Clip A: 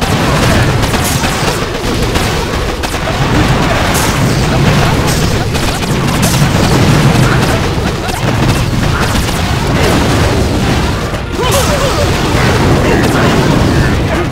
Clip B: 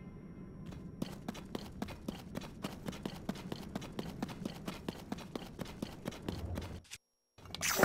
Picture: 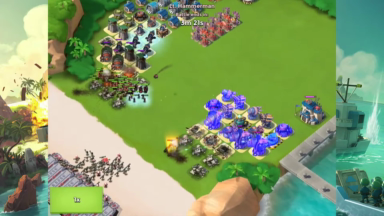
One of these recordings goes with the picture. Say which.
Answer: A